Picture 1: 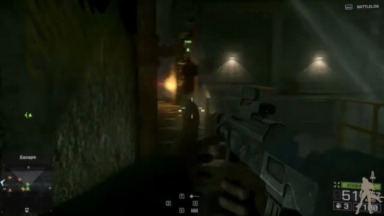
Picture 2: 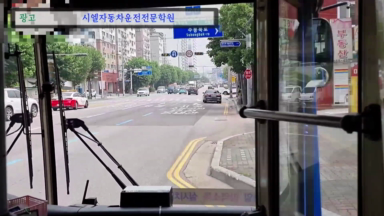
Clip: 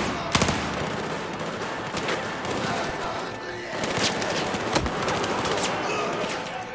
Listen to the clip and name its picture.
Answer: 1